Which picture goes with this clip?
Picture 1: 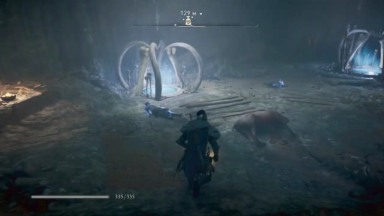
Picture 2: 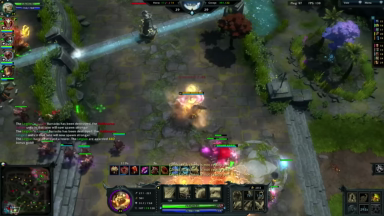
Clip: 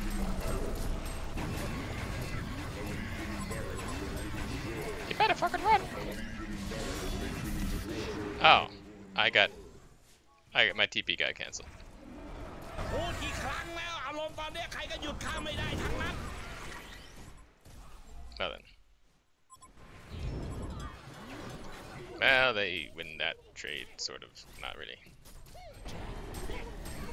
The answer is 2